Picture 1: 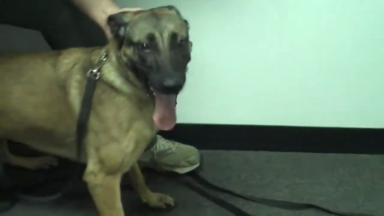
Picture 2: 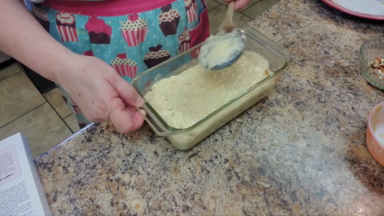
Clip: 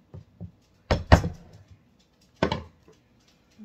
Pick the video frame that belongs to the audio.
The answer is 2